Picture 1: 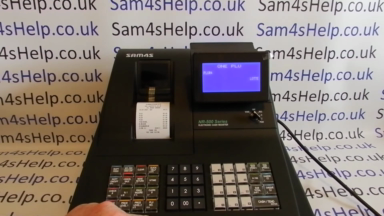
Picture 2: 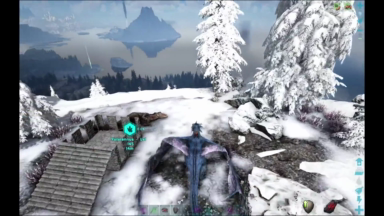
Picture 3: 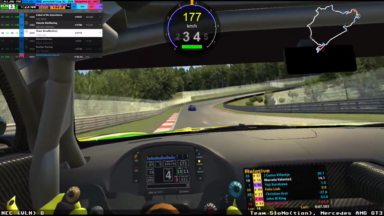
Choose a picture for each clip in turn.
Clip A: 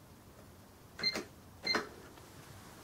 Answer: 1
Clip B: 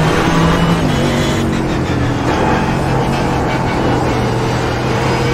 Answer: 3